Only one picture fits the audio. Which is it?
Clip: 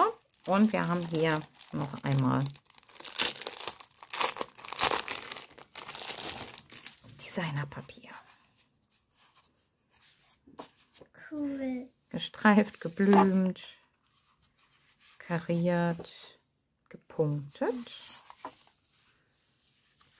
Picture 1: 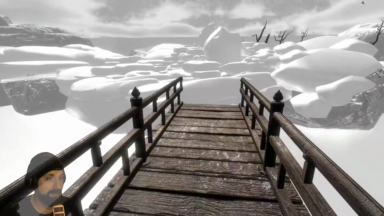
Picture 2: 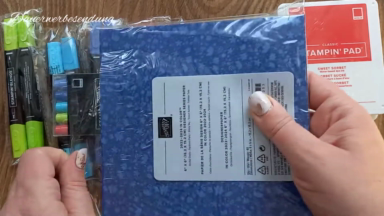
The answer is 2